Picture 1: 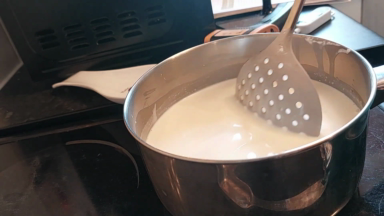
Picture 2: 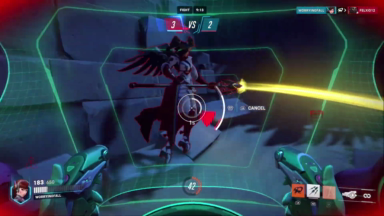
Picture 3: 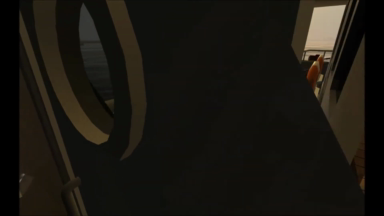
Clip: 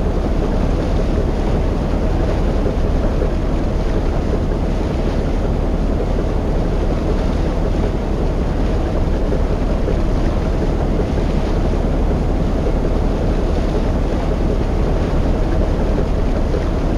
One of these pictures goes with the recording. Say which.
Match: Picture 3